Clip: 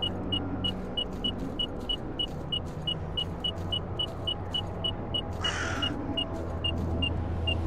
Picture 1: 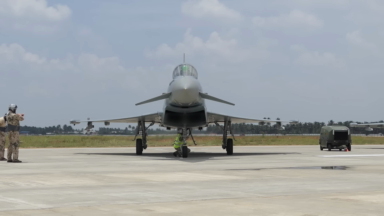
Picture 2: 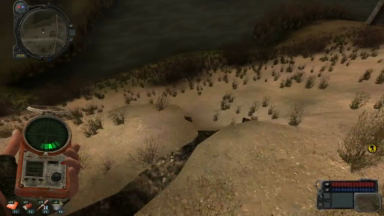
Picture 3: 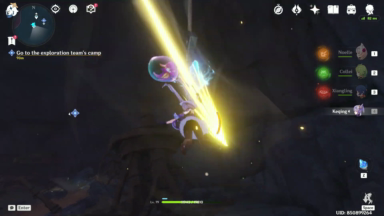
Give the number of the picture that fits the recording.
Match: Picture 2